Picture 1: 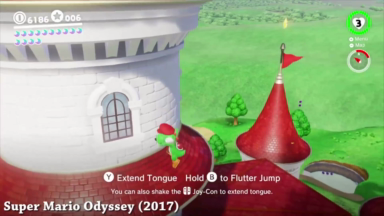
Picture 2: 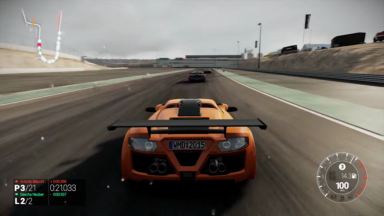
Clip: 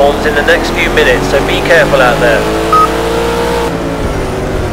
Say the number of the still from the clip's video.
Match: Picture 2